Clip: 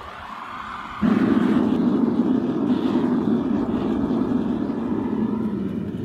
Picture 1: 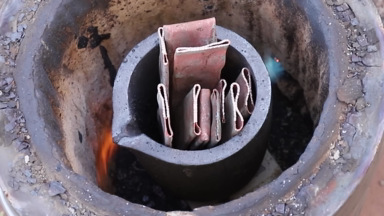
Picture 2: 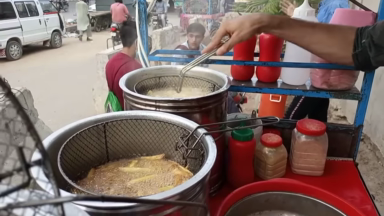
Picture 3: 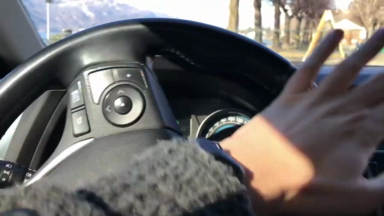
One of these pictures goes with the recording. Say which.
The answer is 1